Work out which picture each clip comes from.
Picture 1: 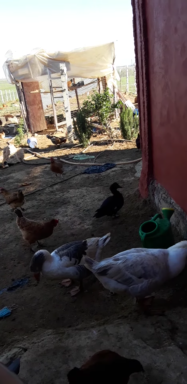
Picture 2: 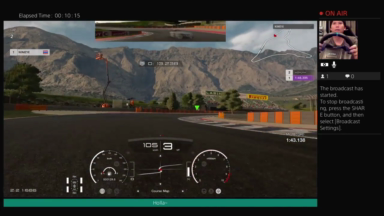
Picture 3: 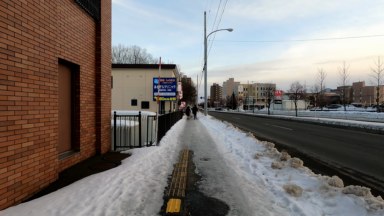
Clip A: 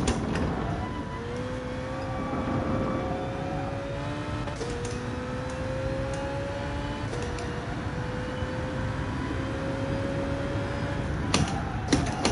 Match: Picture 2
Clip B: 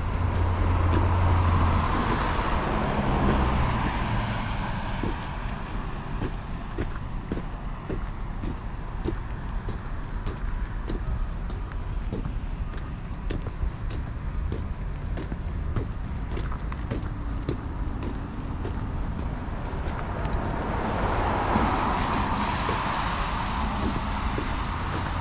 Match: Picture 3